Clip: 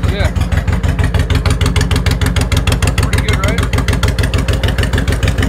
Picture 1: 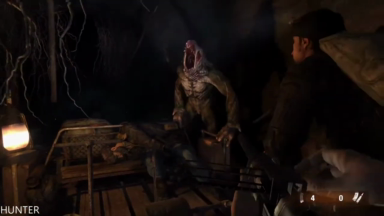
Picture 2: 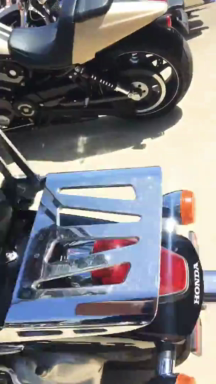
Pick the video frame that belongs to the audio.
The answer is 2